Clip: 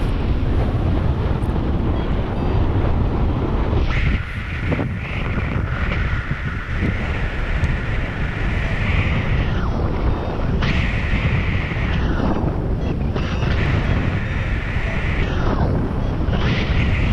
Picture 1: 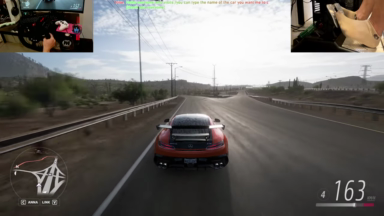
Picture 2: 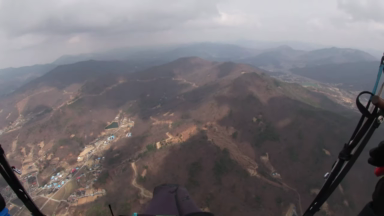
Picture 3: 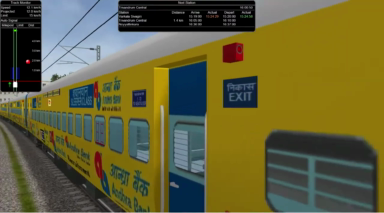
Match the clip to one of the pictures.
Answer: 2